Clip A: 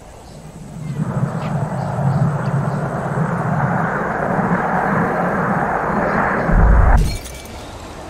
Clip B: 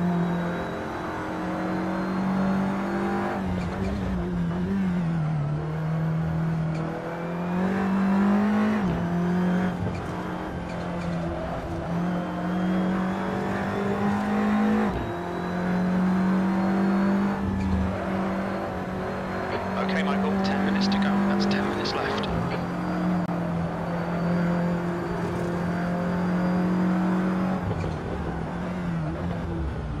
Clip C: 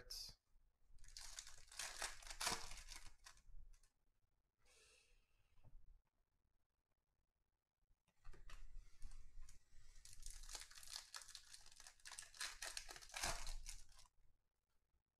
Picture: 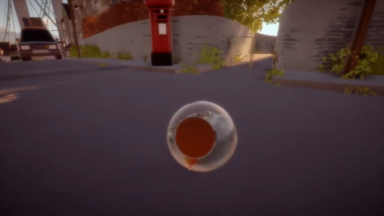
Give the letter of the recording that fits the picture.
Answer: A